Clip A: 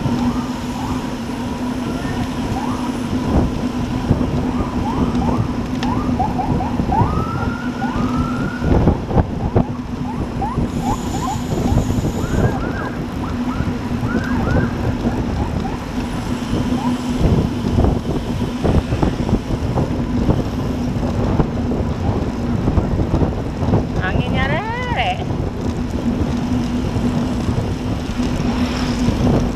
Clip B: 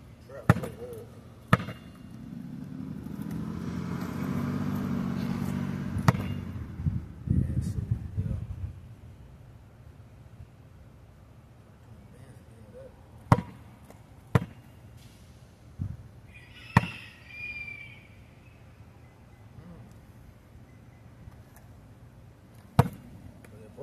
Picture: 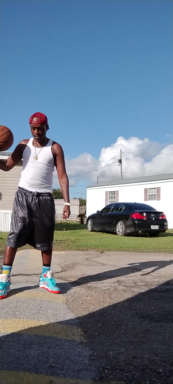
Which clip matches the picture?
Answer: B